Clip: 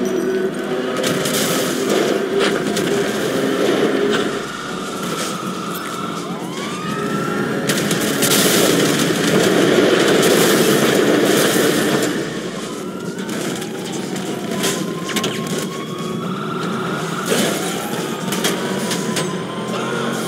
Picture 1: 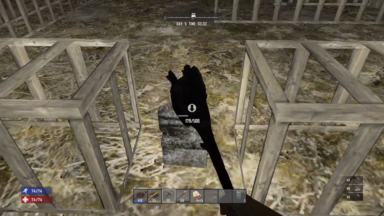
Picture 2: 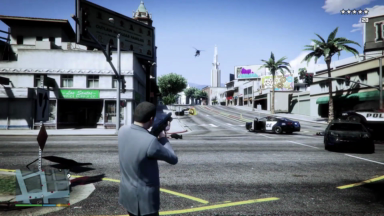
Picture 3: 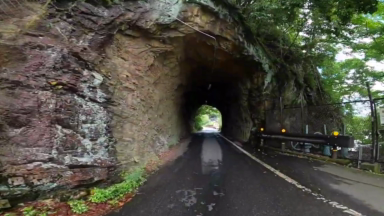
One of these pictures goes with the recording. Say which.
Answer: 2